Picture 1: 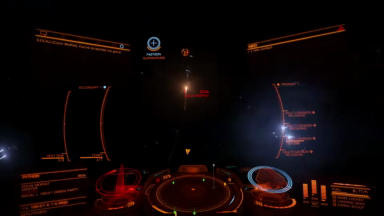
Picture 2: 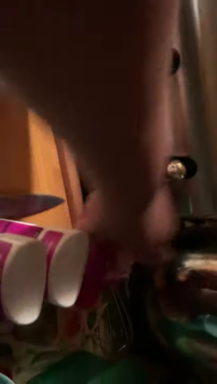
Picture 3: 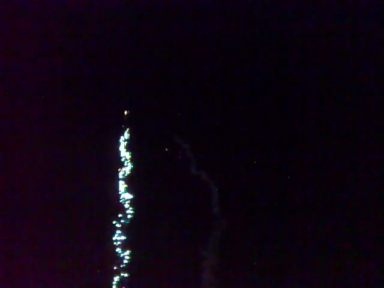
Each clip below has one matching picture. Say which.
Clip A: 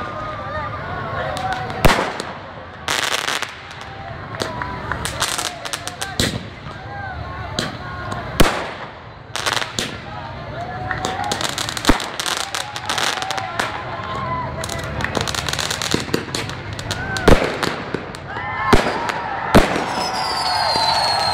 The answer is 3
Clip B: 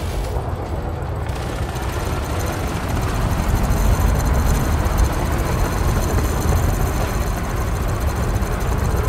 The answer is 1